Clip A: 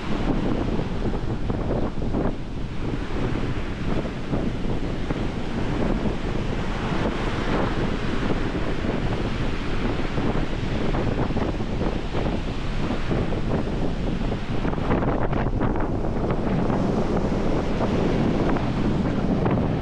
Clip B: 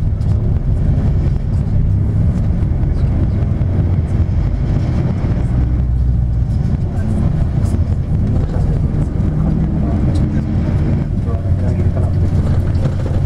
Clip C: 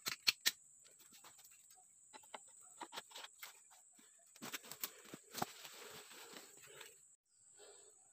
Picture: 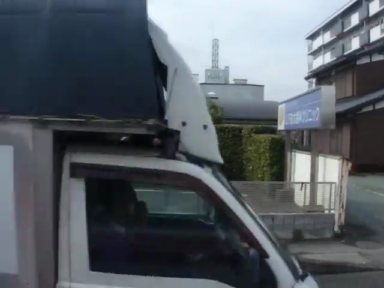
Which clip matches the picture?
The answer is B